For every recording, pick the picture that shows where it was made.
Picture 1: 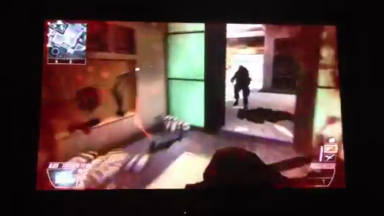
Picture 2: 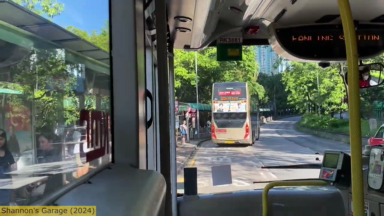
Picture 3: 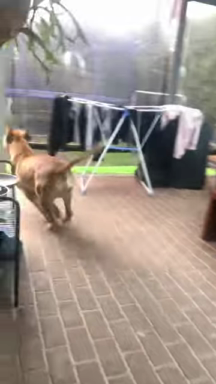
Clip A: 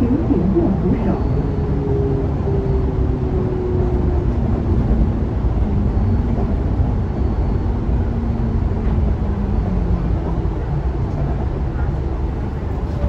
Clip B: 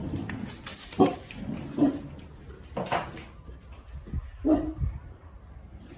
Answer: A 2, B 3